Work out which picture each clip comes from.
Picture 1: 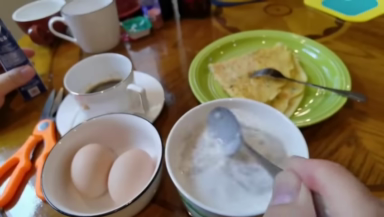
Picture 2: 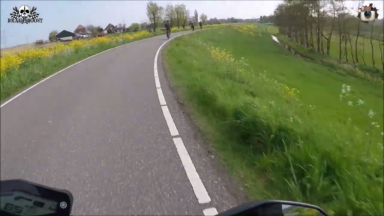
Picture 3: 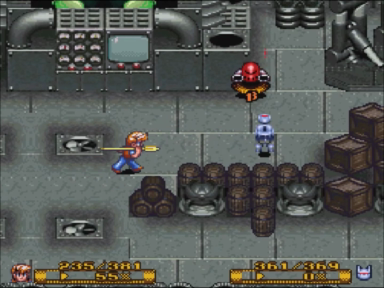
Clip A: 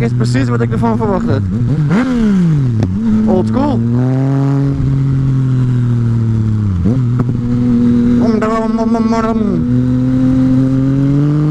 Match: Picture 2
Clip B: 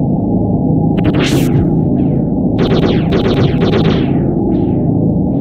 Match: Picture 3